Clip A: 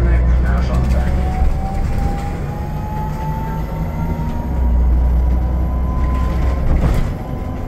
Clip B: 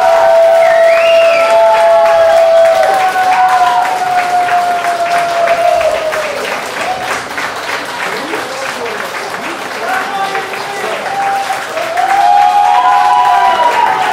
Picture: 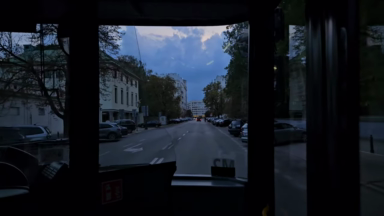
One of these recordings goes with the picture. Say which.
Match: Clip A